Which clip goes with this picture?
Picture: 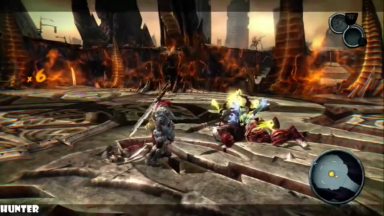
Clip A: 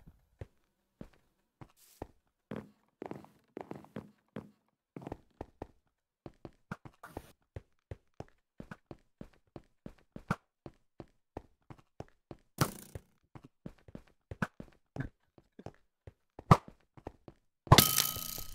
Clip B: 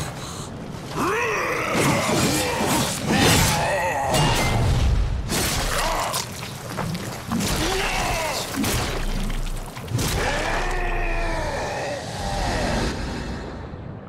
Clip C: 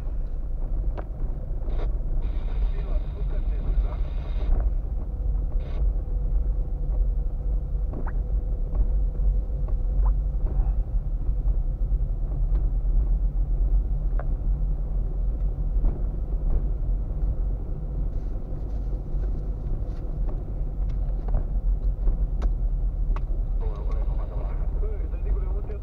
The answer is B